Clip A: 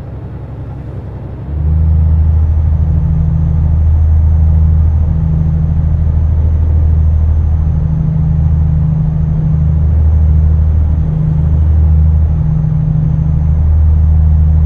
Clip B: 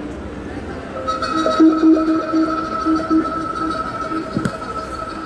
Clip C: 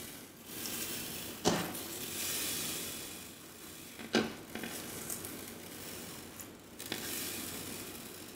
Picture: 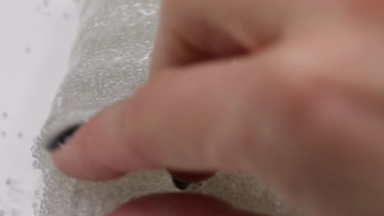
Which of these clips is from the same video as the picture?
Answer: C